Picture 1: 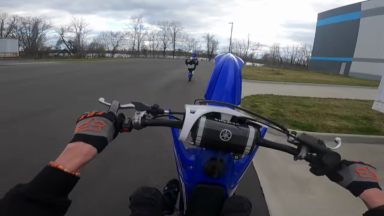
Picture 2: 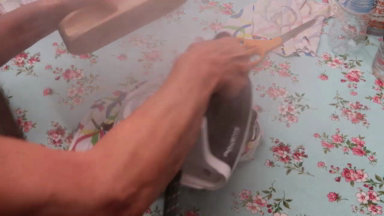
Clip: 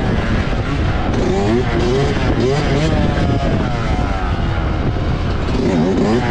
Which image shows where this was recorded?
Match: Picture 1